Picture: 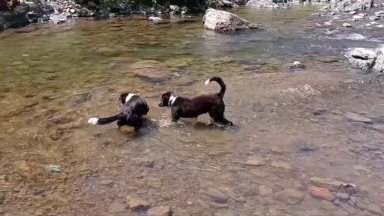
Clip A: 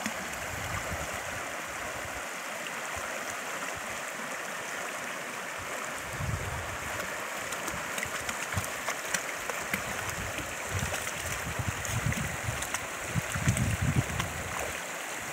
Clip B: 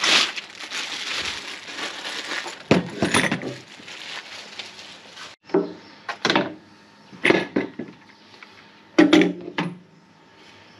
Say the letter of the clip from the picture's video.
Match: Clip A